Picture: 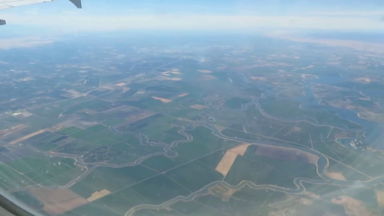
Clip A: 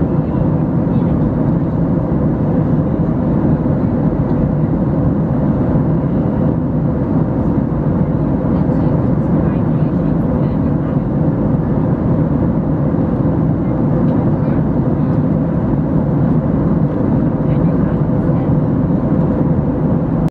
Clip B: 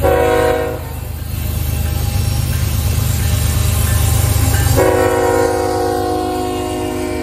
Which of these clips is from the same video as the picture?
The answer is A